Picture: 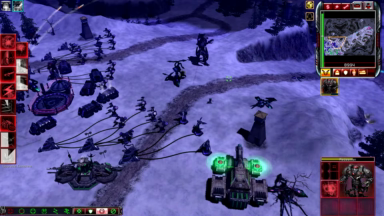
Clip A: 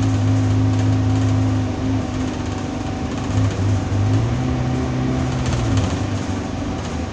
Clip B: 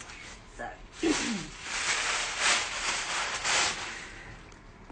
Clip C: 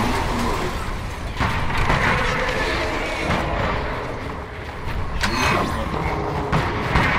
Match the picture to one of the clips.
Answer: C